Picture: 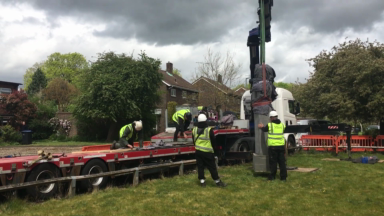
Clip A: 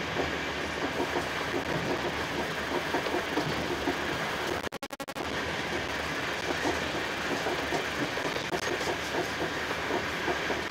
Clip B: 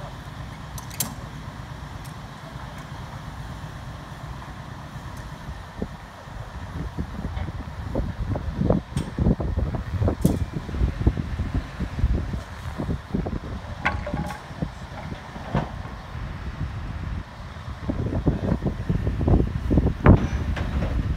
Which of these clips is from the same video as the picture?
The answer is B